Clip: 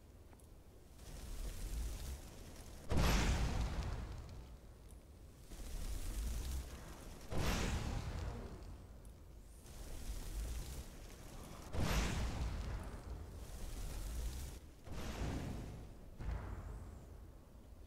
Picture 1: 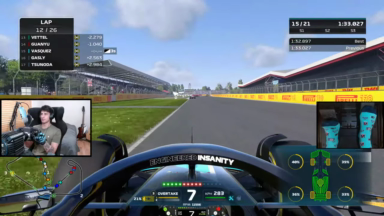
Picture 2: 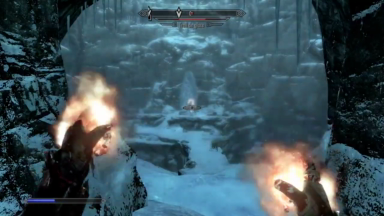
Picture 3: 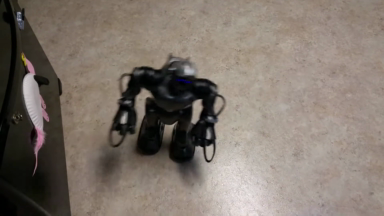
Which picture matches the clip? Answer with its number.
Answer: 2